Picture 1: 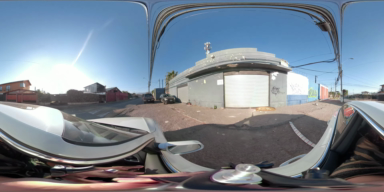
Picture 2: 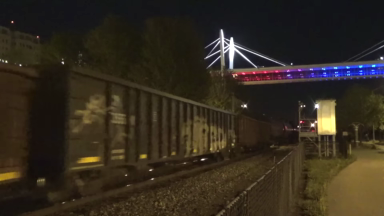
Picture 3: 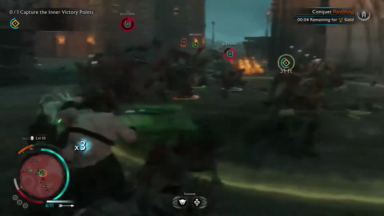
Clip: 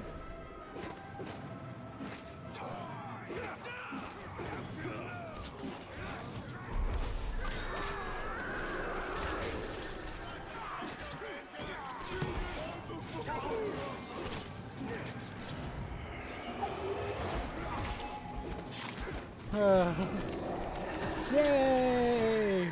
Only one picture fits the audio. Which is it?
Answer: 3